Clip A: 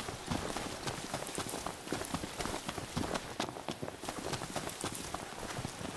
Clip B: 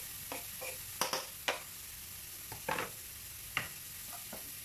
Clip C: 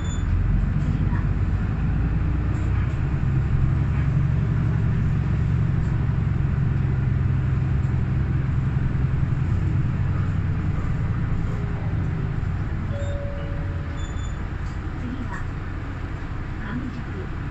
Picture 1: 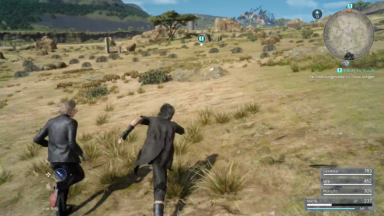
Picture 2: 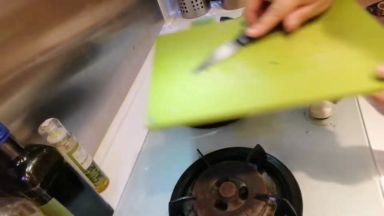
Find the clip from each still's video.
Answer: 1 A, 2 B